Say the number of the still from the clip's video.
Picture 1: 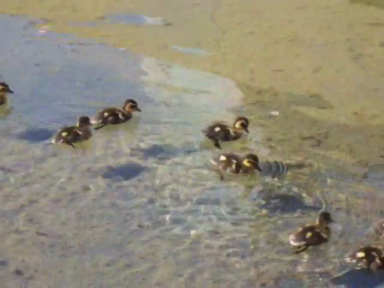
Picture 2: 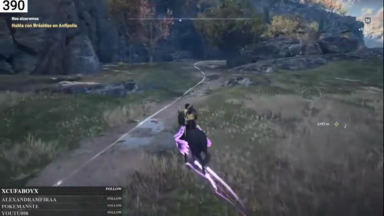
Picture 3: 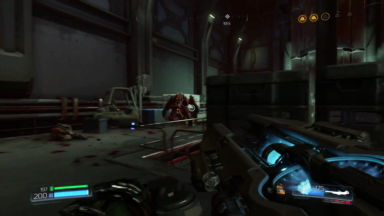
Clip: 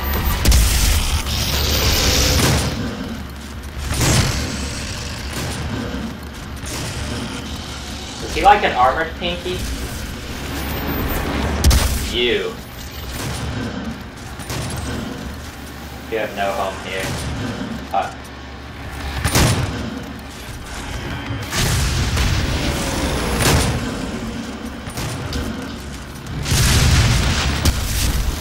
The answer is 3